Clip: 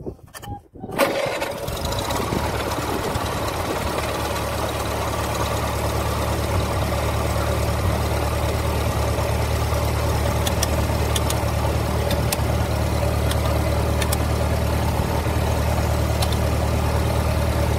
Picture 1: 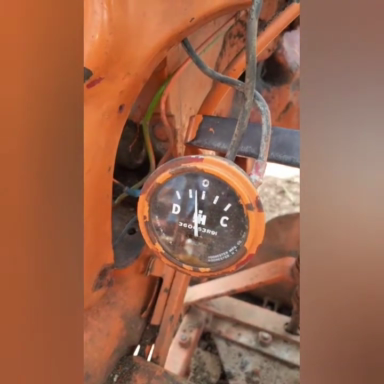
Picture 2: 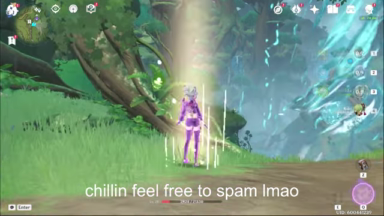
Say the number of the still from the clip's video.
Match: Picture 1